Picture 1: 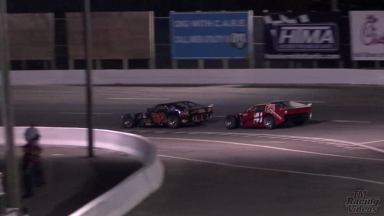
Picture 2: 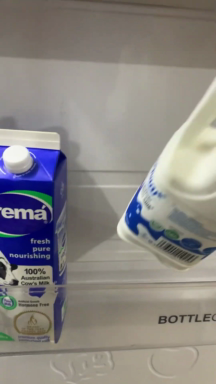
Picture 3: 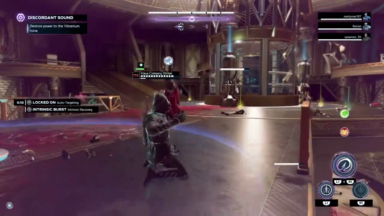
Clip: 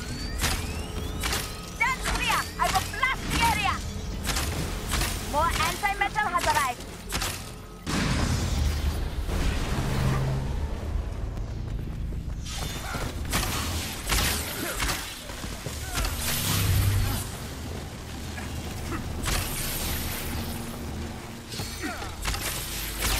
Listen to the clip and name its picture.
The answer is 3